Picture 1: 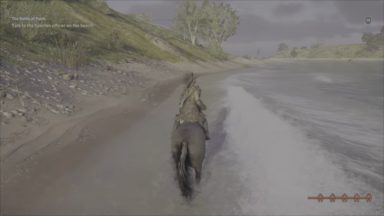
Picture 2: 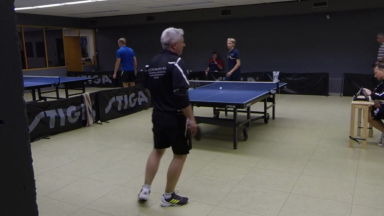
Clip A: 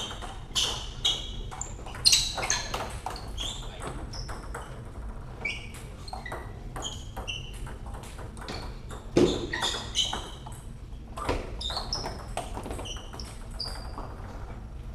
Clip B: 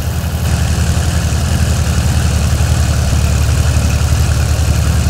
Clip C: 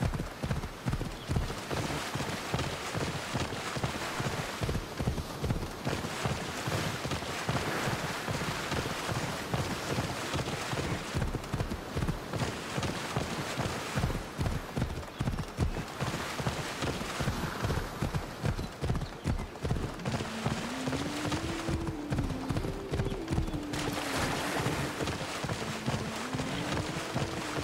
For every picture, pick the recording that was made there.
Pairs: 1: C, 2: A